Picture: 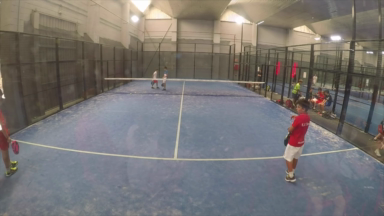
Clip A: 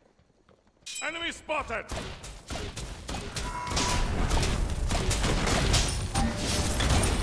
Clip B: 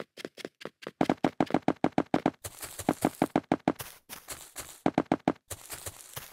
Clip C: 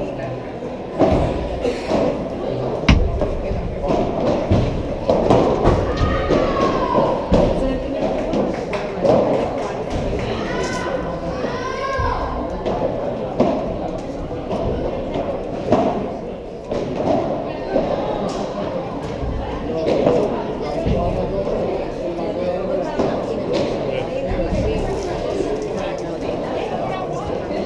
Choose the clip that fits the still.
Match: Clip C